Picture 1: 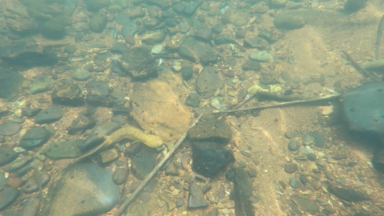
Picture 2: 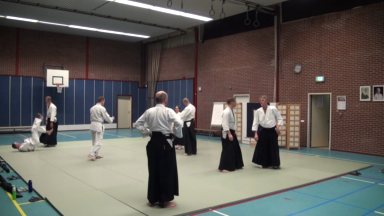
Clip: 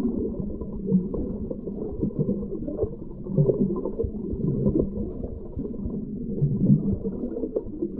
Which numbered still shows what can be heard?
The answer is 1